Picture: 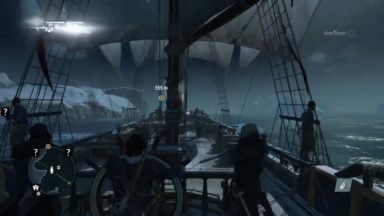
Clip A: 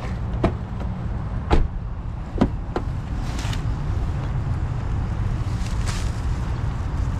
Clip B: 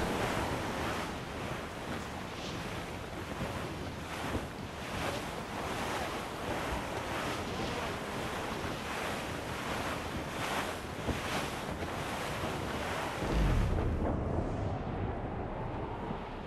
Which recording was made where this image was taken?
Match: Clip B